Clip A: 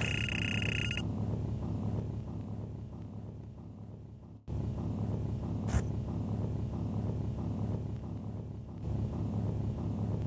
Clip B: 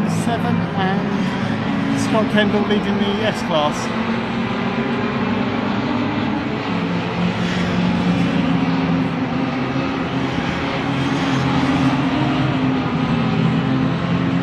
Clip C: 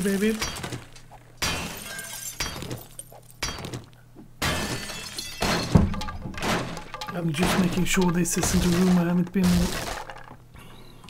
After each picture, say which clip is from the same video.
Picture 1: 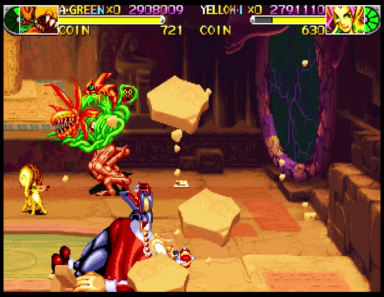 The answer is A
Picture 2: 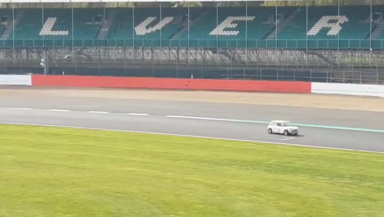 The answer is B